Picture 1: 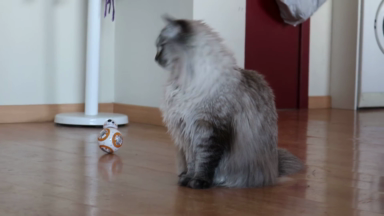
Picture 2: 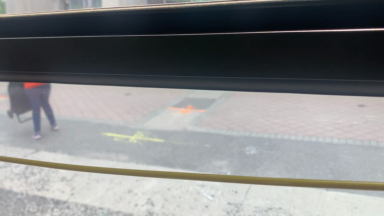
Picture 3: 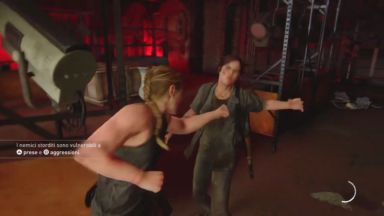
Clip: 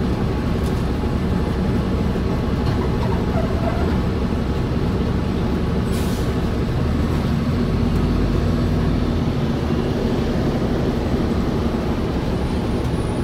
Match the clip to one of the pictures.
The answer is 2